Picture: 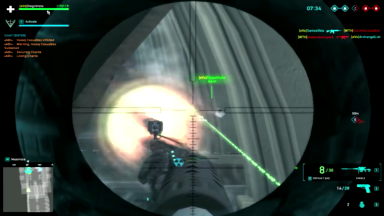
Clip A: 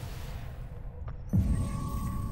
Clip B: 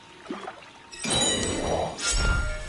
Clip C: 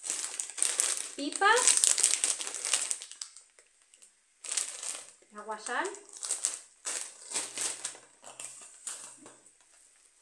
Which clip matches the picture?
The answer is A